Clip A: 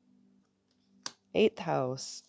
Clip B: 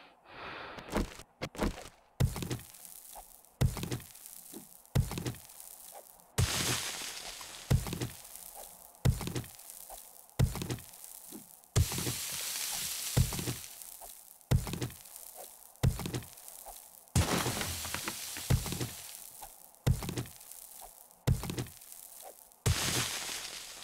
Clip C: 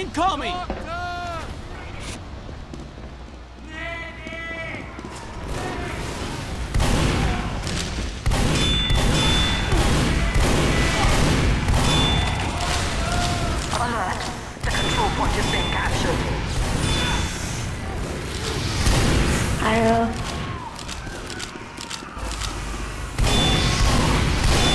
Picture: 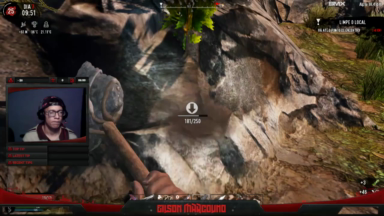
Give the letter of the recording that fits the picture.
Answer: B